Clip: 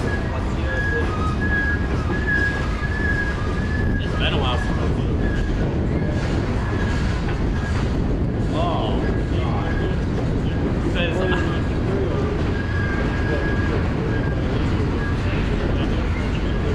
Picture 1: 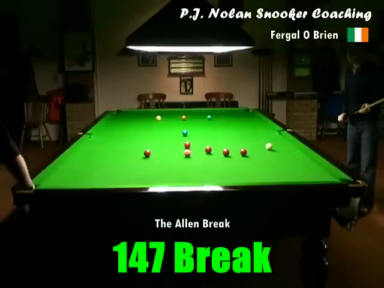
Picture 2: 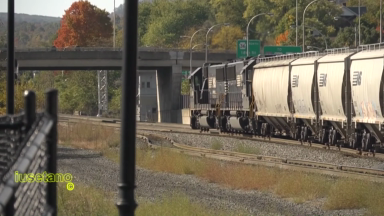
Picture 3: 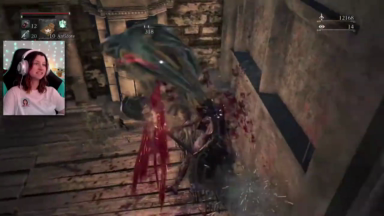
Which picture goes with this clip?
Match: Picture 2